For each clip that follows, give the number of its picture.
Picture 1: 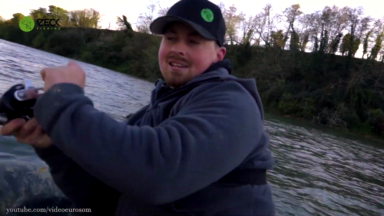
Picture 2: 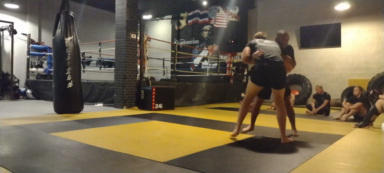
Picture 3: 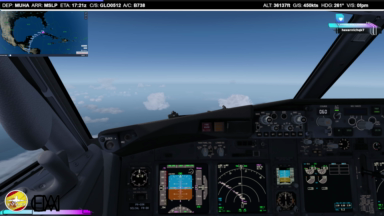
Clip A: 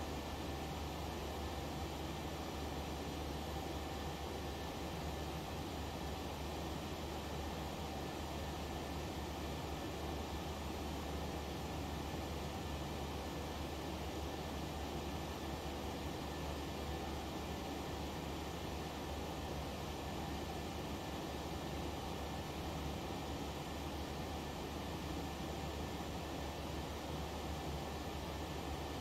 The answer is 3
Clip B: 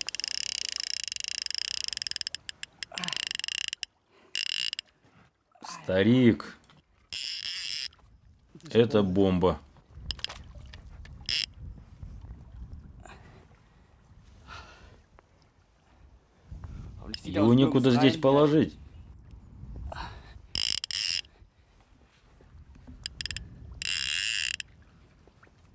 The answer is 1